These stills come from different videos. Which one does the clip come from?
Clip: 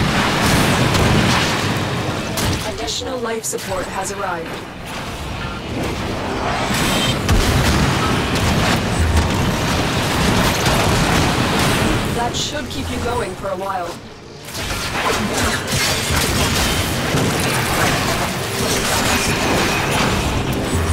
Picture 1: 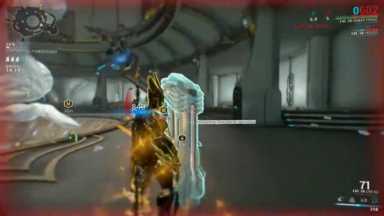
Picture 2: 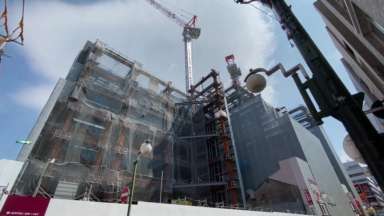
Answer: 1